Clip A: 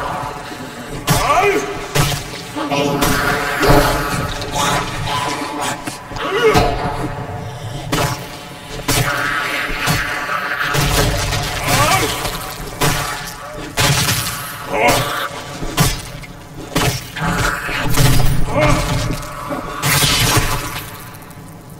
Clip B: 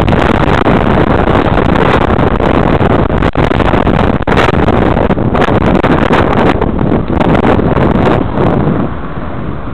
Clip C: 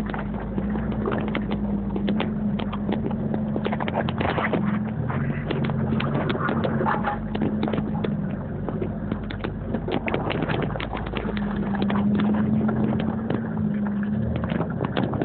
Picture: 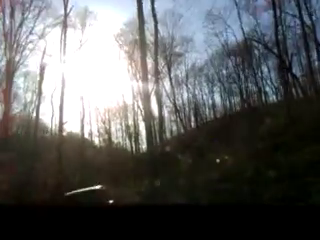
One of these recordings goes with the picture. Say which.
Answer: C